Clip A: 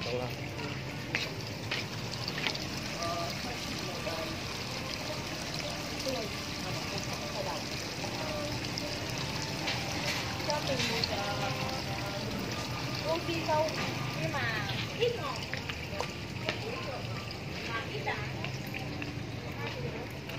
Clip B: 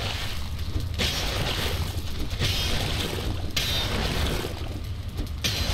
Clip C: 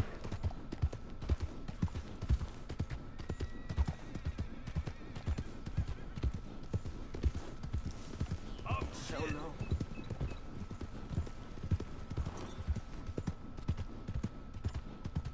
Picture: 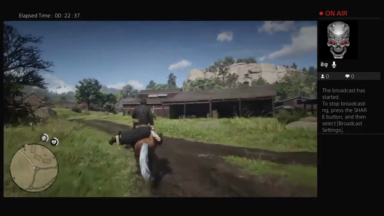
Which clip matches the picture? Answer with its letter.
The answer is C